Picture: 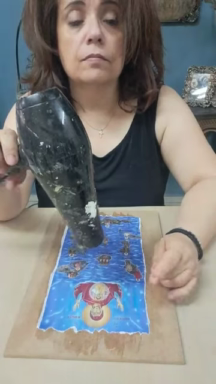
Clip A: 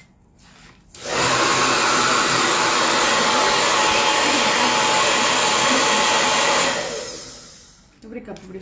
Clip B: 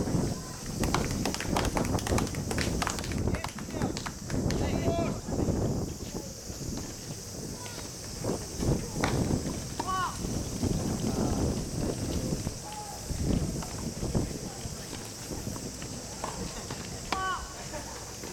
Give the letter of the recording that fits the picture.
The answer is A